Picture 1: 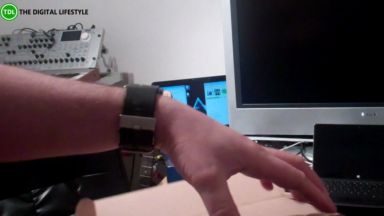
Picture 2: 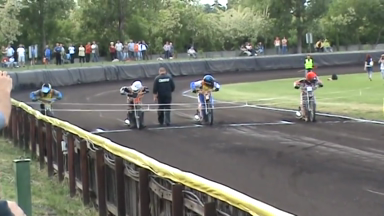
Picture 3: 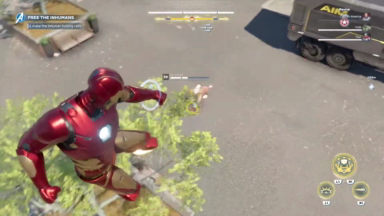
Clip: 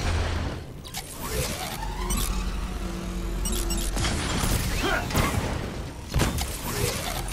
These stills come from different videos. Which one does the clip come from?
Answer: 3